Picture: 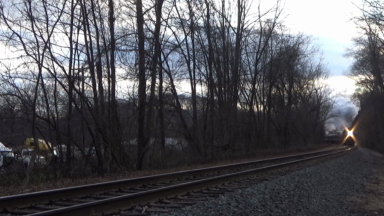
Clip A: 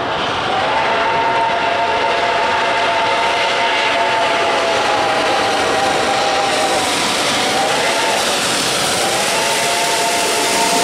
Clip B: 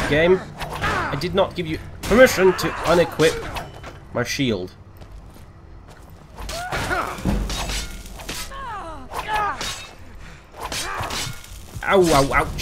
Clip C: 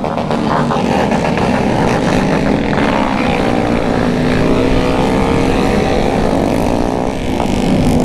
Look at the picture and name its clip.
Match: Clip A